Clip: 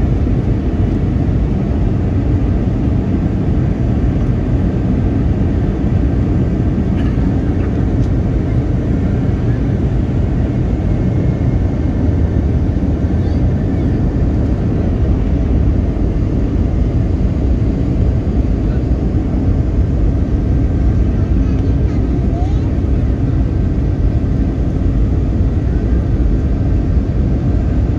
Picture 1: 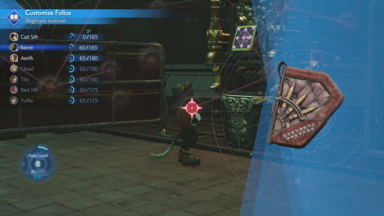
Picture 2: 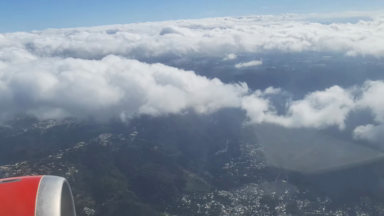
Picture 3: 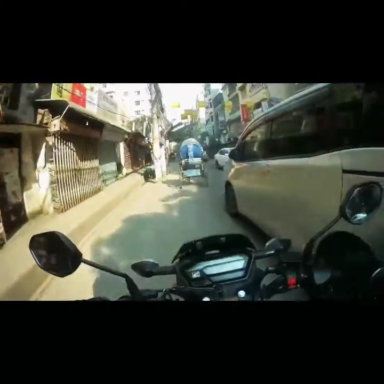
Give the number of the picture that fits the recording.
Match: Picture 2